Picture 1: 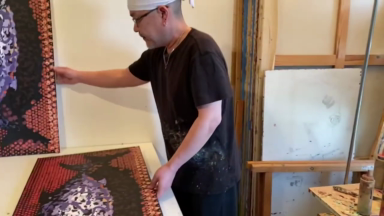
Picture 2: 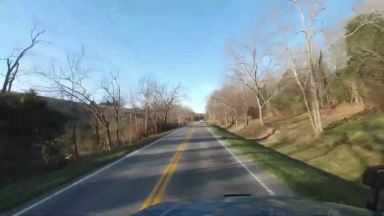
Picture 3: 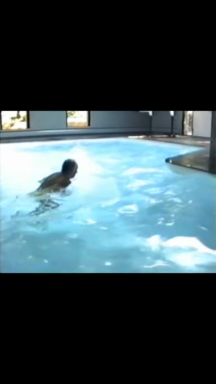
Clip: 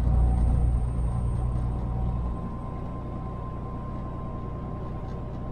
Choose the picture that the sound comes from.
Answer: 2